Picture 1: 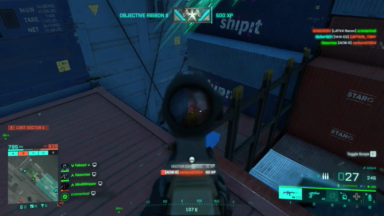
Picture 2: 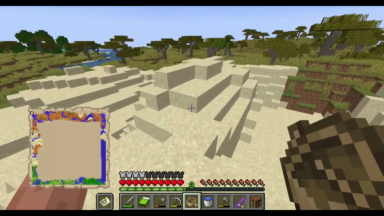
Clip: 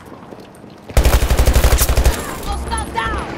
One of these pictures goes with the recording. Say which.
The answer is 1